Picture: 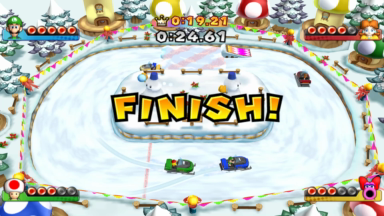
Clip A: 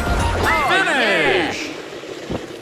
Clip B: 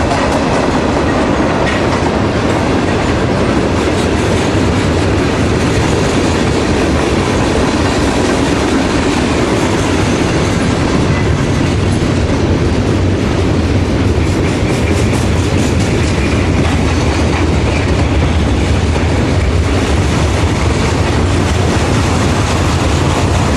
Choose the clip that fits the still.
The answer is A